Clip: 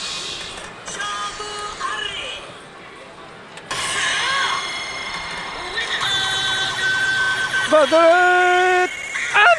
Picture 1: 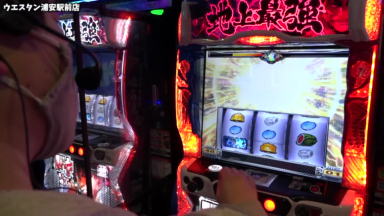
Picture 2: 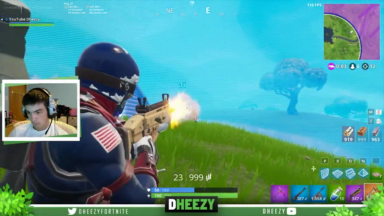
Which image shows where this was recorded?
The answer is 1